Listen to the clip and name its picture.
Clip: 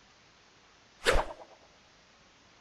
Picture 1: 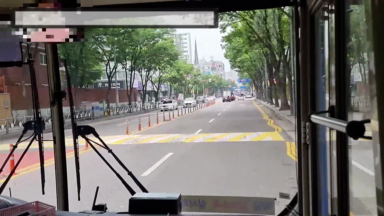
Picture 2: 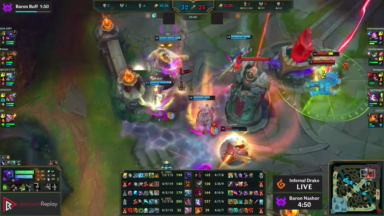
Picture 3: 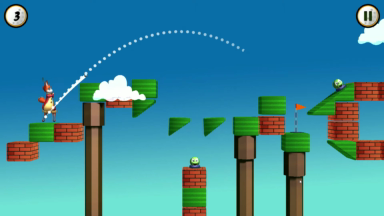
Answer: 3